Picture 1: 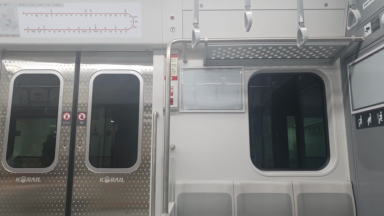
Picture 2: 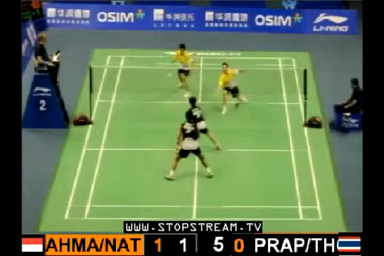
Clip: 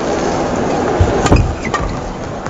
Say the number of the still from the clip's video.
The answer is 2